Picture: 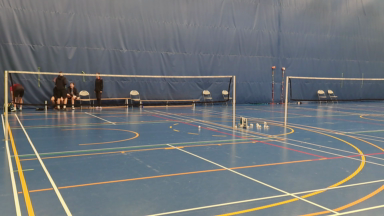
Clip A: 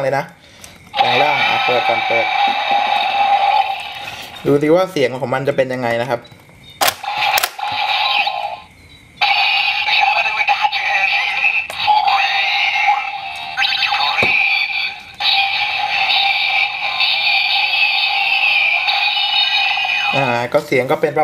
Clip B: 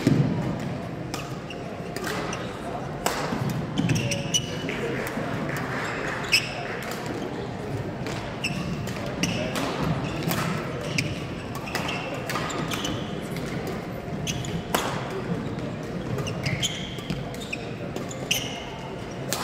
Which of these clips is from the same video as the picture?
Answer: B